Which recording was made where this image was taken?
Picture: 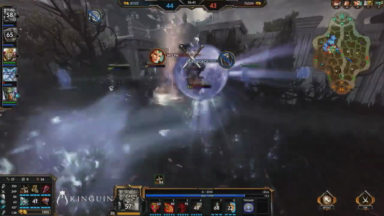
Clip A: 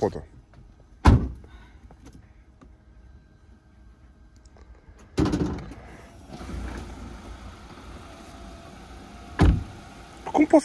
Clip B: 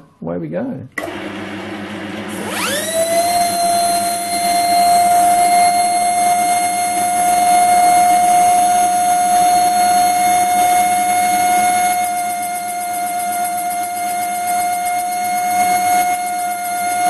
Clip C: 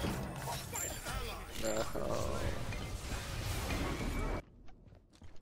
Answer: C